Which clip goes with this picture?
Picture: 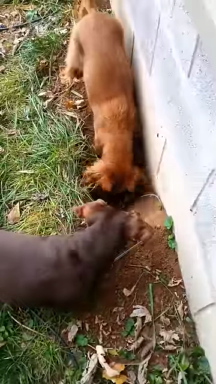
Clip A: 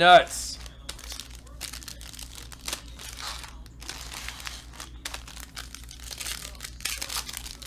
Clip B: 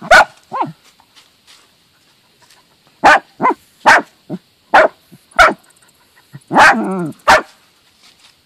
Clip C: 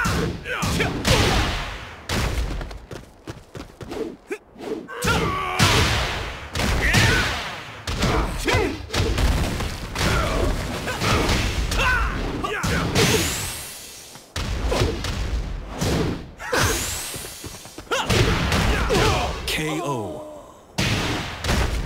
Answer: B